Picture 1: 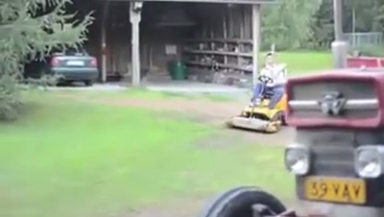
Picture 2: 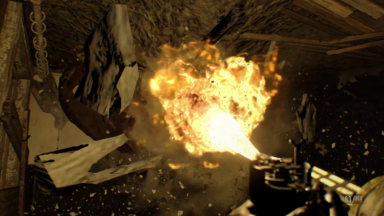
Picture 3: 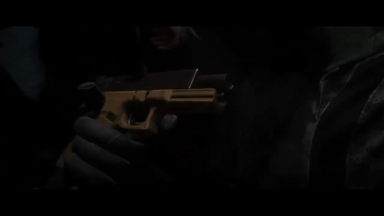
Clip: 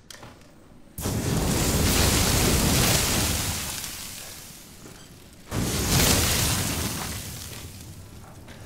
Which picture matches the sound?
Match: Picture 2